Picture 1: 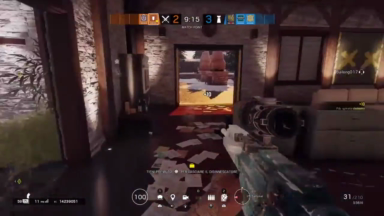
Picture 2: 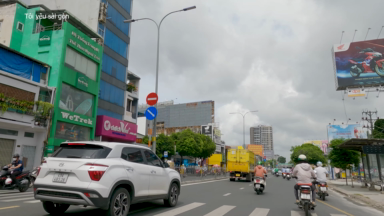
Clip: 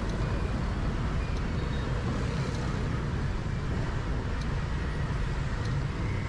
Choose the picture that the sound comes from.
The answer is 2